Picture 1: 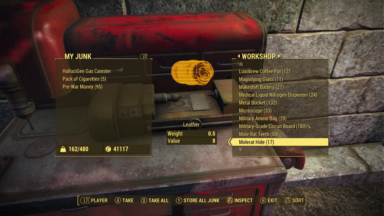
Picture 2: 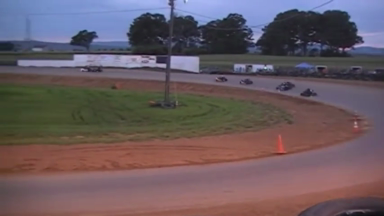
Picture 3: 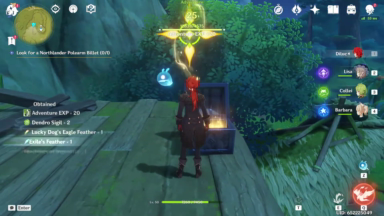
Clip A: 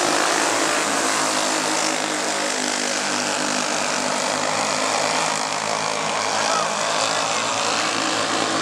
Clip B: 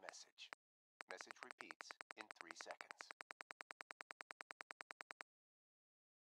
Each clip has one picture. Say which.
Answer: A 2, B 1